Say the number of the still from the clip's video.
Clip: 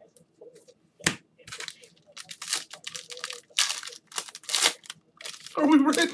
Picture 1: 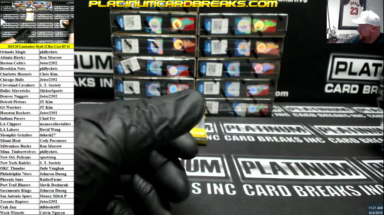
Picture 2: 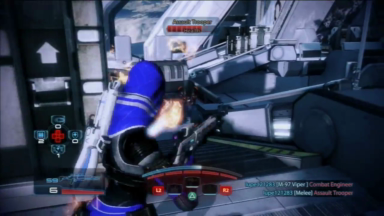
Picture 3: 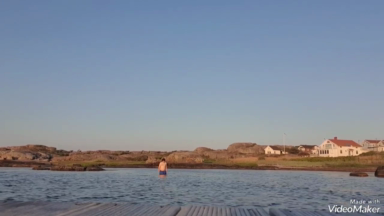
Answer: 1